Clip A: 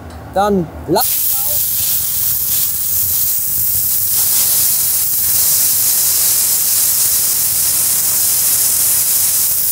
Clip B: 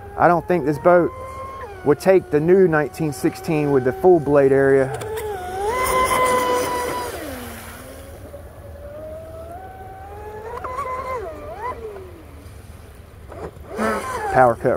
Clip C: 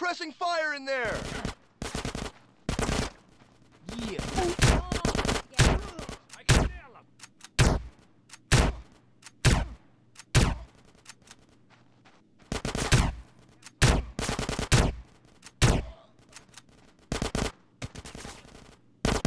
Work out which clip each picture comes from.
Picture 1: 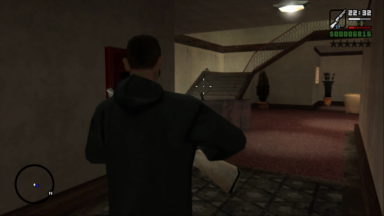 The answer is C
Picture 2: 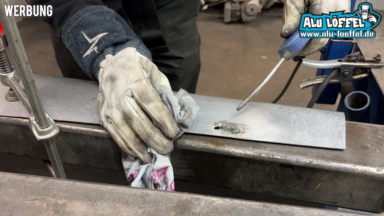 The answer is A